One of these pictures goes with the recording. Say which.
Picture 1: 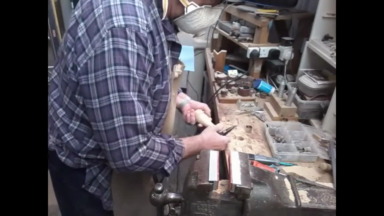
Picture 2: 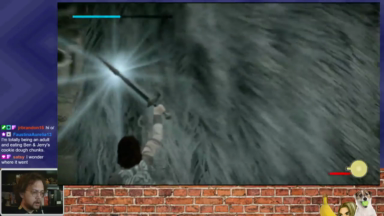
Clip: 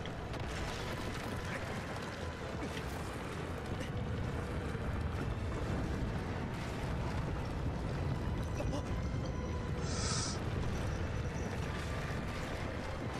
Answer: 2